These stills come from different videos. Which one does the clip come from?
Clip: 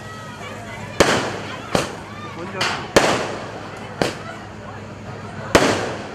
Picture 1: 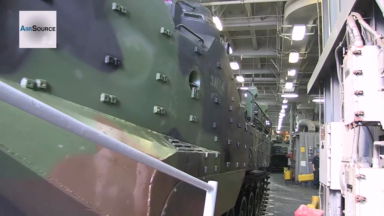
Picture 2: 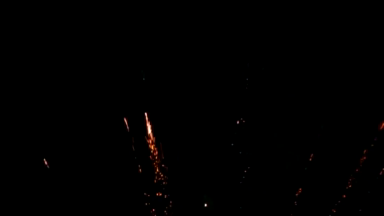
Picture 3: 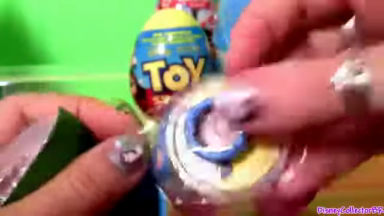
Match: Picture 2